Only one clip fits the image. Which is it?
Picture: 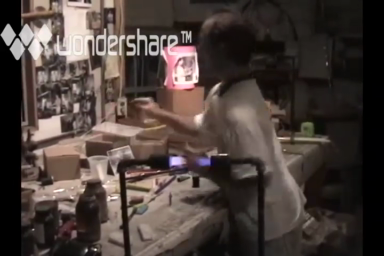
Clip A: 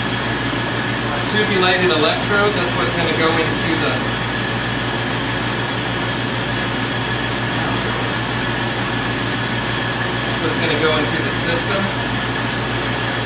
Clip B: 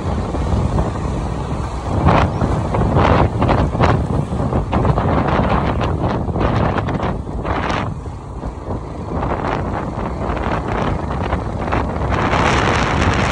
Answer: A